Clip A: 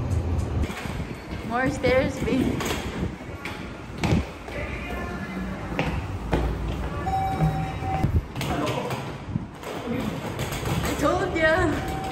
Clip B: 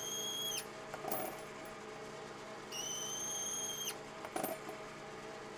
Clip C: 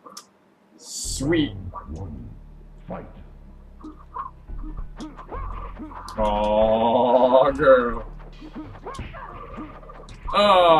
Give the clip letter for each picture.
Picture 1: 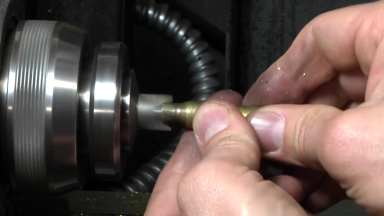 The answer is B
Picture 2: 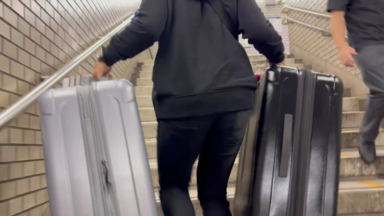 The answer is A